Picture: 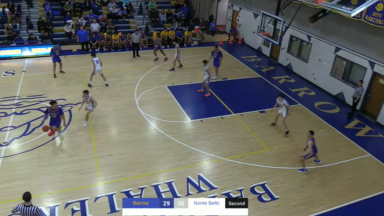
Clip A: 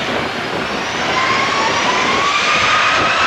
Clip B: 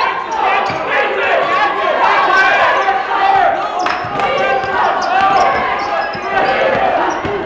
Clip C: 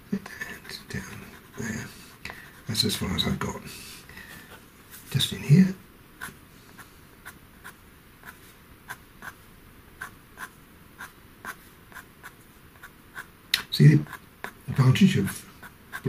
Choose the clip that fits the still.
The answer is B